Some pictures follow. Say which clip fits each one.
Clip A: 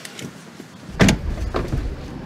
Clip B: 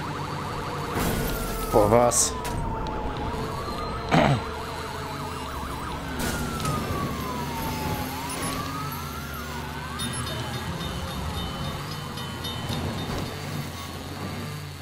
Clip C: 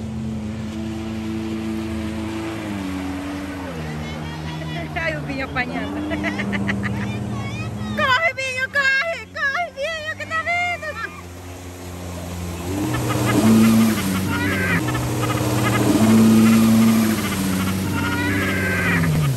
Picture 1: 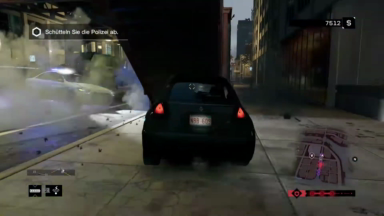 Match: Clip B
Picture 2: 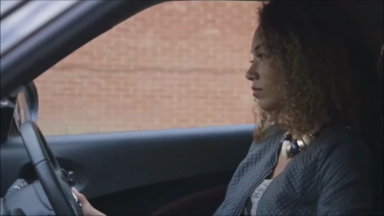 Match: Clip A